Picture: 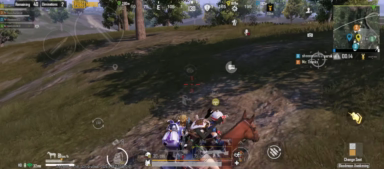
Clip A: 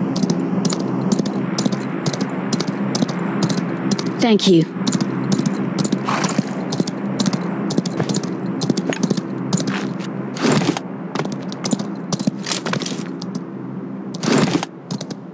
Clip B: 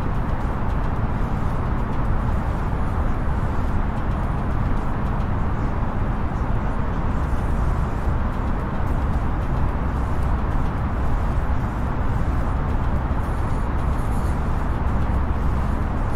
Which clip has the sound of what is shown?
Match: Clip A